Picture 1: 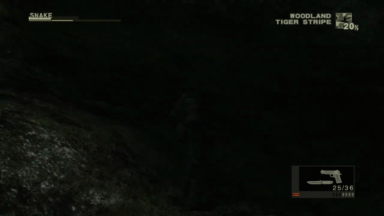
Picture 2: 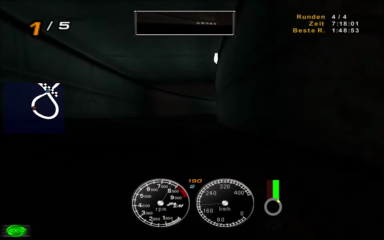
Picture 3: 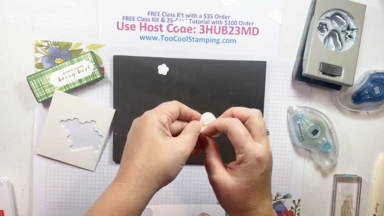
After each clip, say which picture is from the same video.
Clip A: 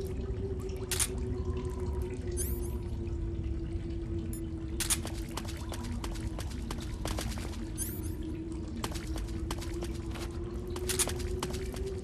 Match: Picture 1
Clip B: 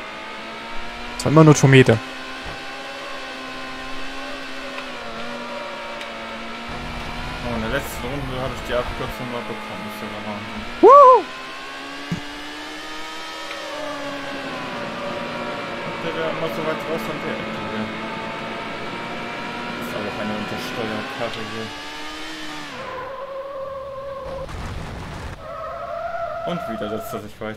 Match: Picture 2